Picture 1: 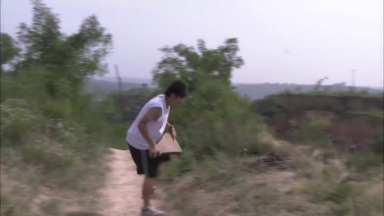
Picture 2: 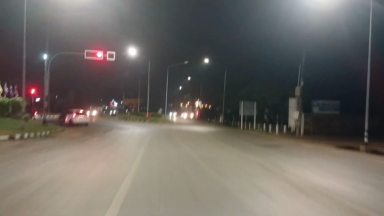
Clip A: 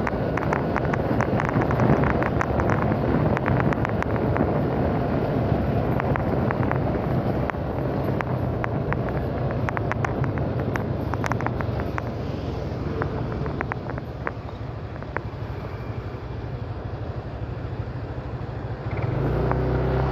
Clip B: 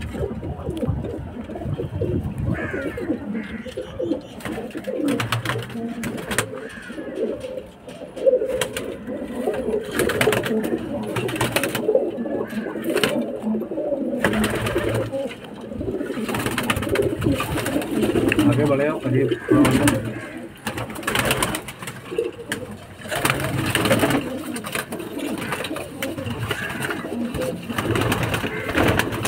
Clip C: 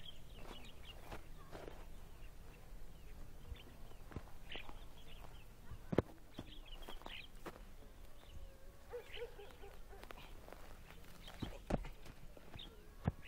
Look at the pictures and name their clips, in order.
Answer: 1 C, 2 A